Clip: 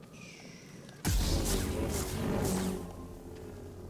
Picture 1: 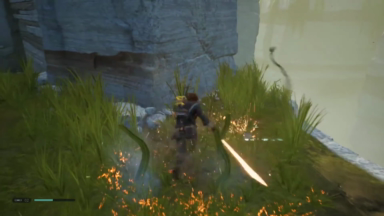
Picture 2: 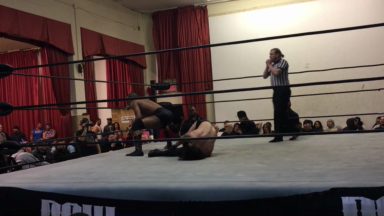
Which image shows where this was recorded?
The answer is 1